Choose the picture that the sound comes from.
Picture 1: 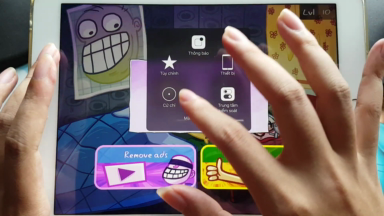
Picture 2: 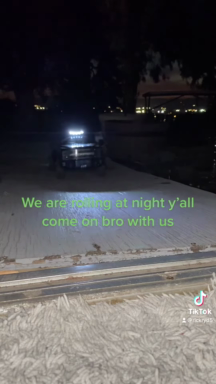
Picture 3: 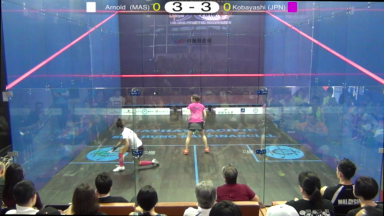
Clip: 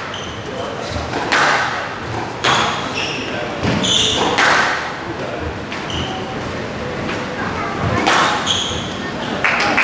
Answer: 3